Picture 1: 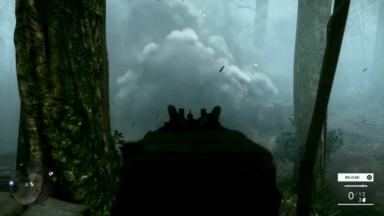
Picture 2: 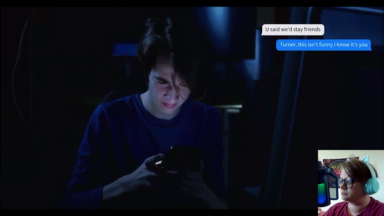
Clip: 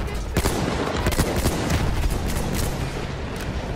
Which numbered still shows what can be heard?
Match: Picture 1